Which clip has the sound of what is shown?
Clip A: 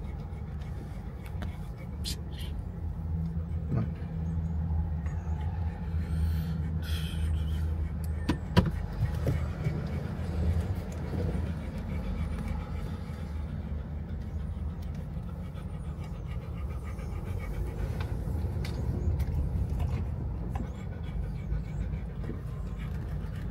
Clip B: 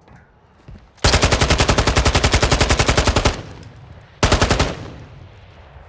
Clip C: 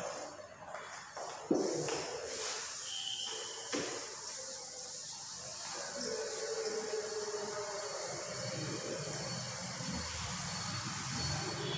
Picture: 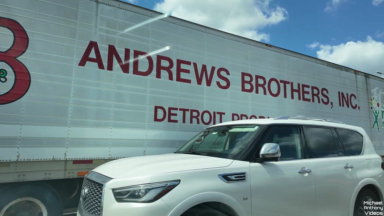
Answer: A